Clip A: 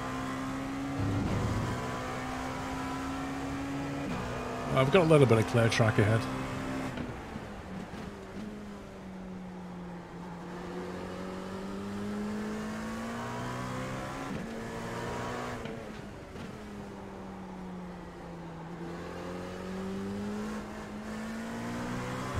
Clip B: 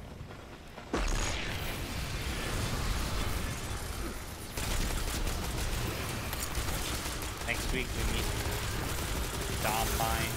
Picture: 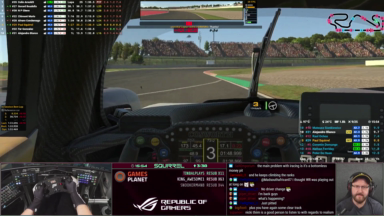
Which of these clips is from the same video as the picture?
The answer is A